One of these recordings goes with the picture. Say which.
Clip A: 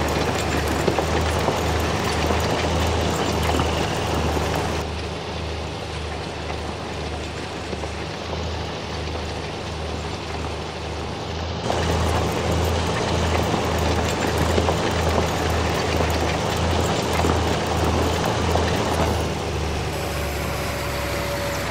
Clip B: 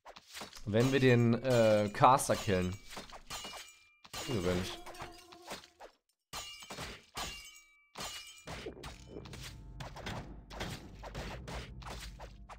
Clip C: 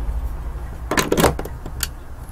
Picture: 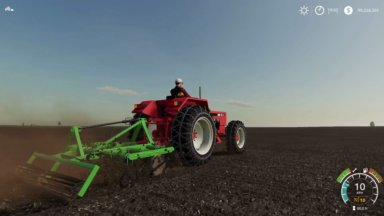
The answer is A